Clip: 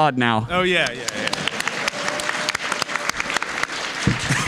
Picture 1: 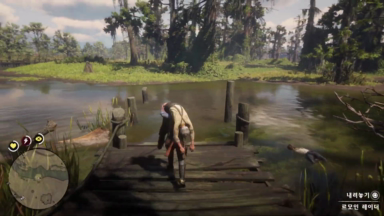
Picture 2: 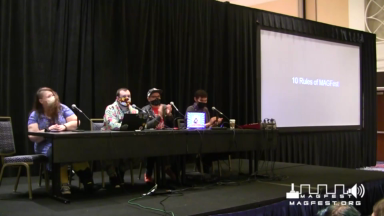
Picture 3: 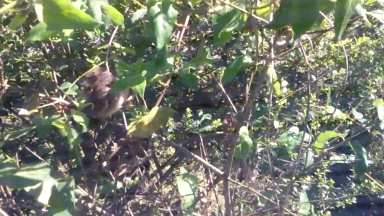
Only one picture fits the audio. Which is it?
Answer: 2